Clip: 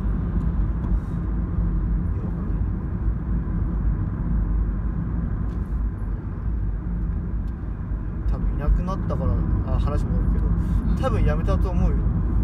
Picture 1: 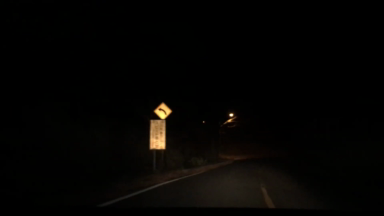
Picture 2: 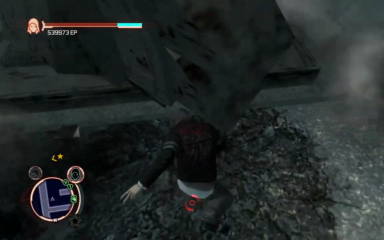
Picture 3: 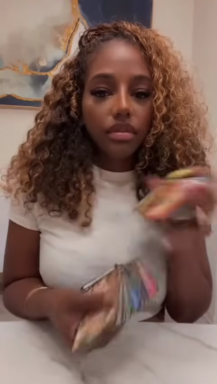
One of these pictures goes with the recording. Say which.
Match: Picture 1